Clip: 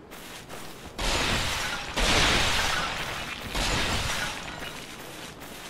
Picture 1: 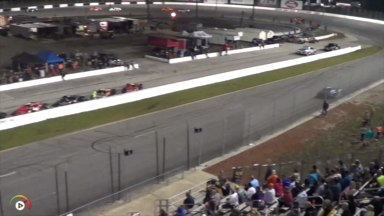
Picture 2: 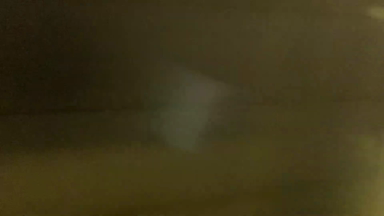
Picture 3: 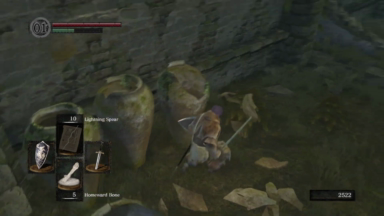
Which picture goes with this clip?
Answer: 3